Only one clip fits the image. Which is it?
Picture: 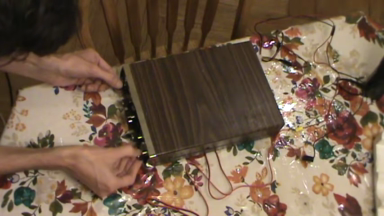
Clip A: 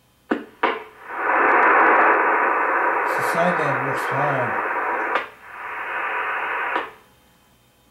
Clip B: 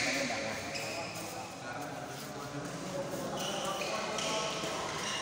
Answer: A